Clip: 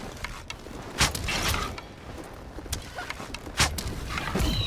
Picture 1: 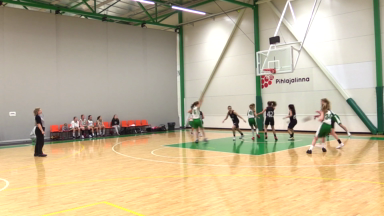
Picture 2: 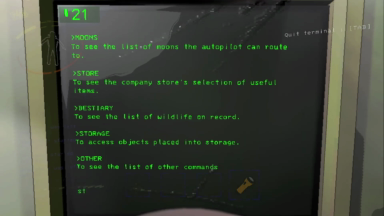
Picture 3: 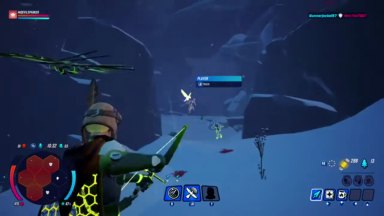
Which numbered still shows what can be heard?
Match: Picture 3